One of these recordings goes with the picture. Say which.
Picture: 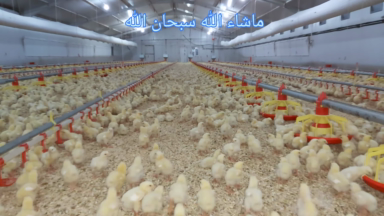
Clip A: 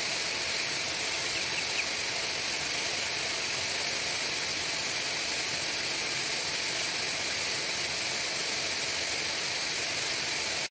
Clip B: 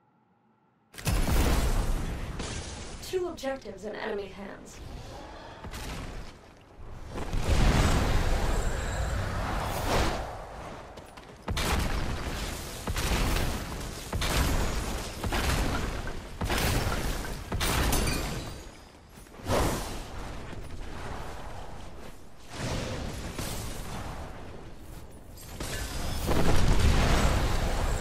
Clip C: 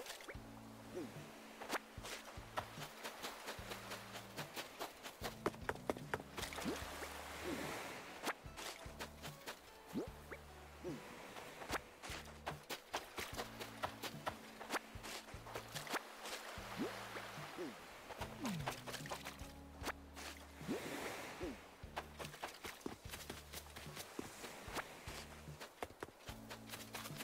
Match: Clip A